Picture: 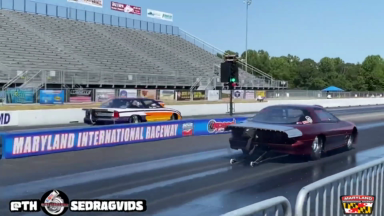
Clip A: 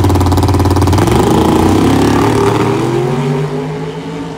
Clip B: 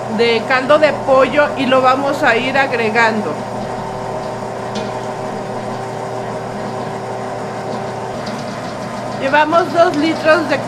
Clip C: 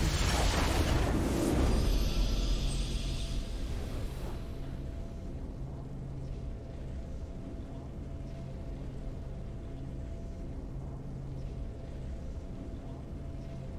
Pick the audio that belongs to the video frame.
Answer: A